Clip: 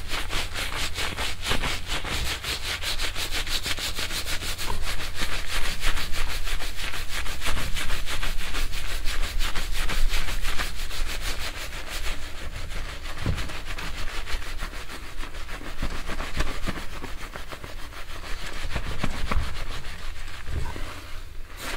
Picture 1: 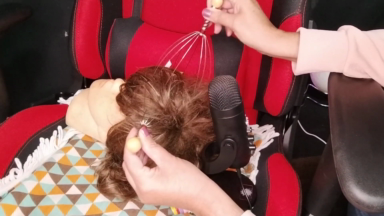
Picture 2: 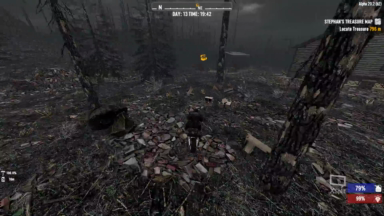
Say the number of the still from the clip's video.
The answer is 1